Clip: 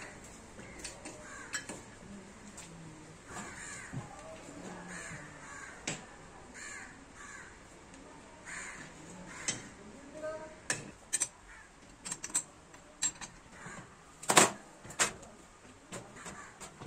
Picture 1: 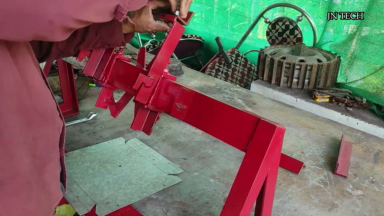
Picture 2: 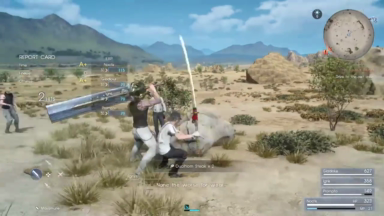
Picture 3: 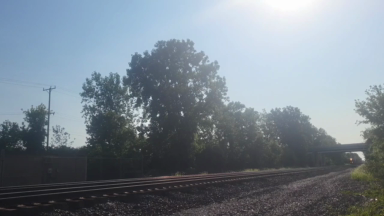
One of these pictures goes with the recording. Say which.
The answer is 1